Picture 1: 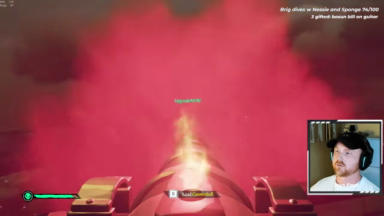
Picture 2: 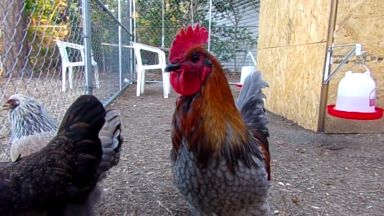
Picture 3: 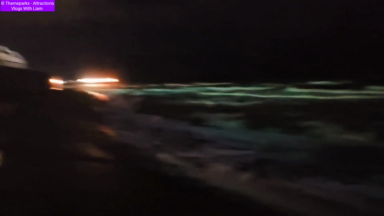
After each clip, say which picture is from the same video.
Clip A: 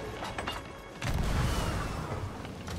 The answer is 1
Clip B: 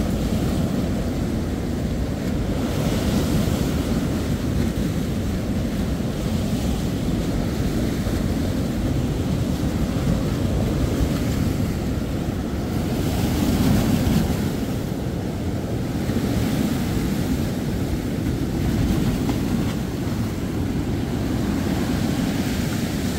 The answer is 3